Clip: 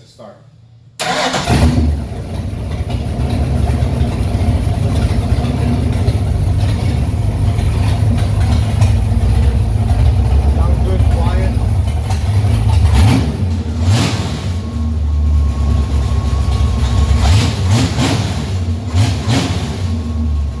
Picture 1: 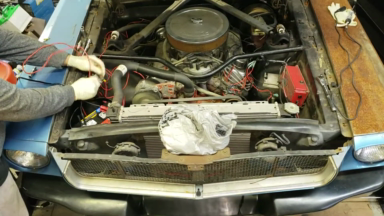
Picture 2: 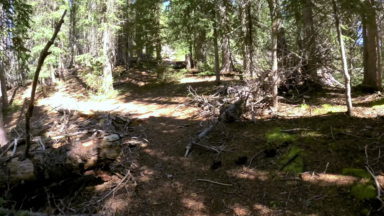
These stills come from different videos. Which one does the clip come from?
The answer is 1